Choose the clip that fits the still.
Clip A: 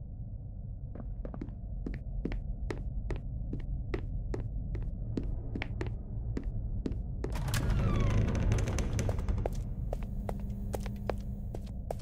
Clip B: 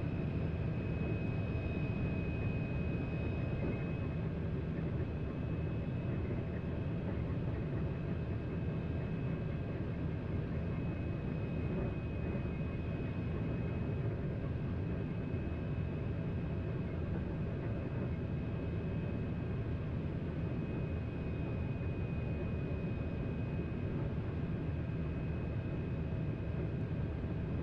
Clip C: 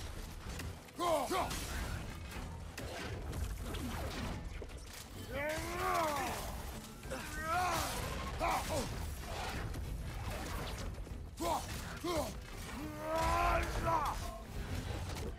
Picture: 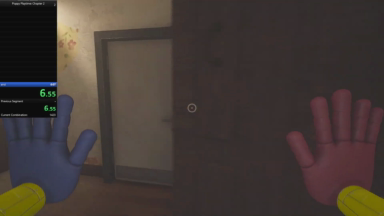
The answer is A